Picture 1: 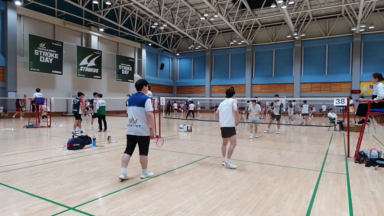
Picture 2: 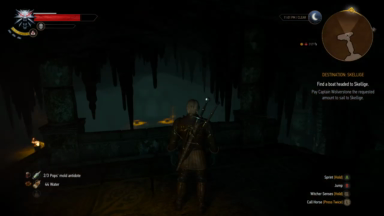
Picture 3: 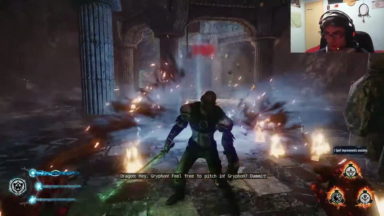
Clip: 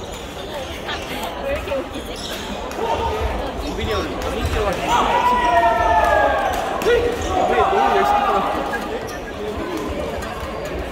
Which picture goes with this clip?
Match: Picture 1